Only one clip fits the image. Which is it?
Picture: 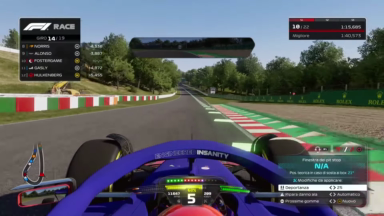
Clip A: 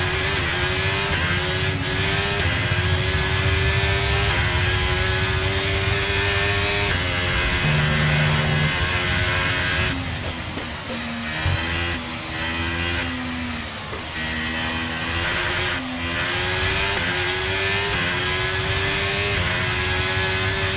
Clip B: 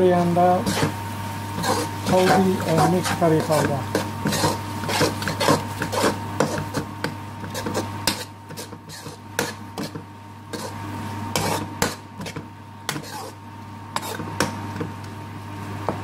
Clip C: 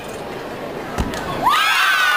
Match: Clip A